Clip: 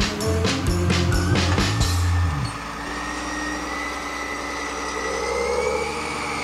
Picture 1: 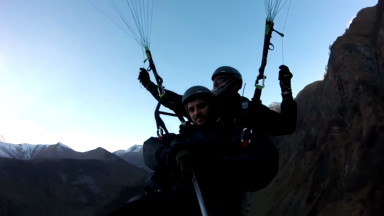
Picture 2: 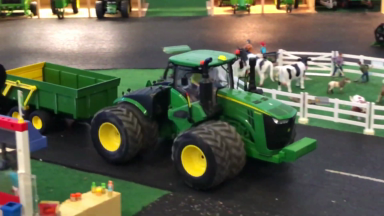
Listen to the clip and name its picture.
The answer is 2